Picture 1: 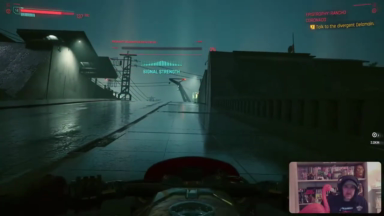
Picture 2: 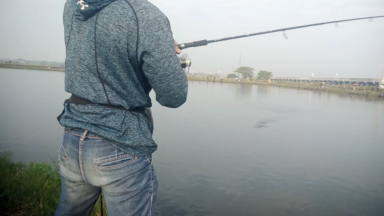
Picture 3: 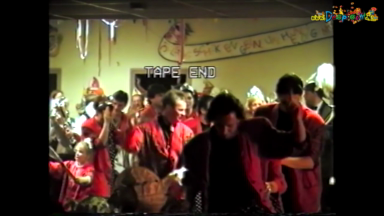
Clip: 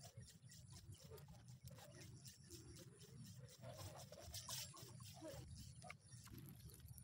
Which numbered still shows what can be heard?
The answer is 2